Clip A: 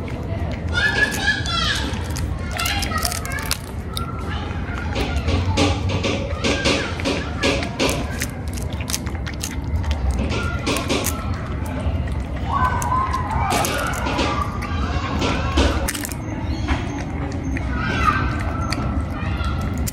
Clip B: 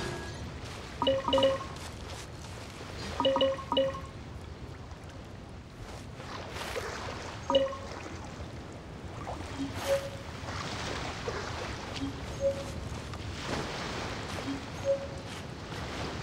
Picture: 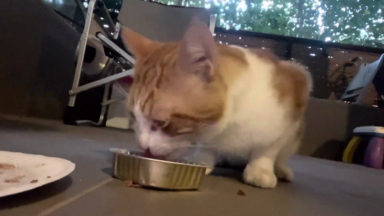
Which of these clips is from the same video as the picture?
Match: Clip A